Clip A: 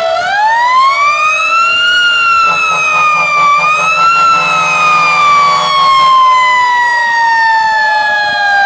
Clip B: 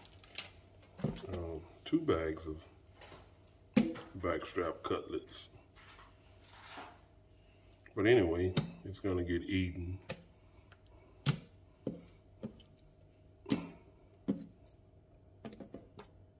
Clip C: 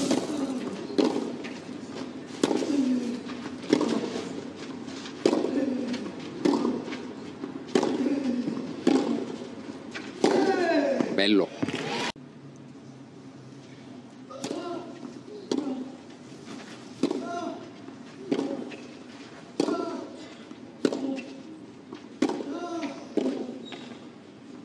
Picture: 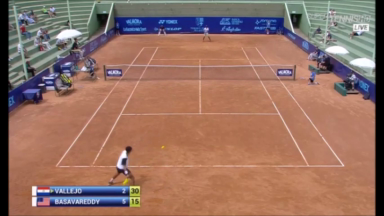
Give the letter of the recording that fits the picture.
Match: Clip C